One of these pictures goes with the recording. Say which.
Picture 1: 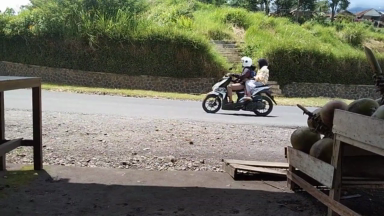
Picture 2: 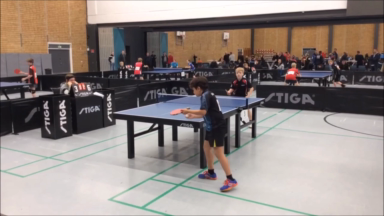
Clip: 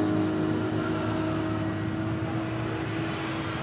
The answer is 1